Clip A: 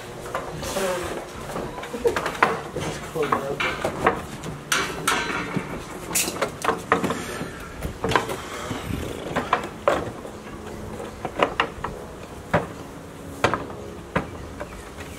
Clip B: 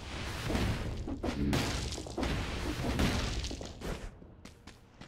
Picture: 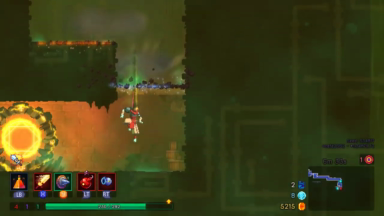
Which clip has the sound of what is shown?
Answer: B